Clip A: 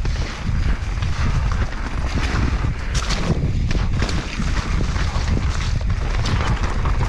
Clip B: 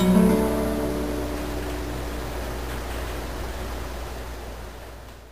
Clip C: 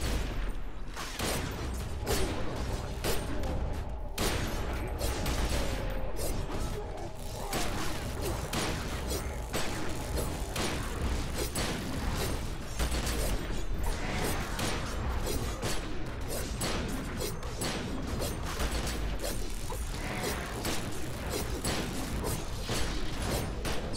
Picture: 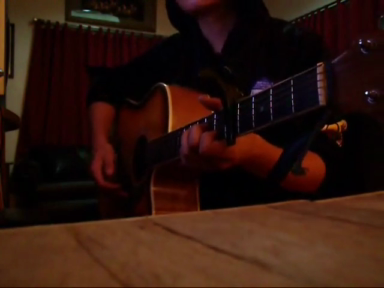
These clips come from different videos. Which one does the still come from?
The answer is B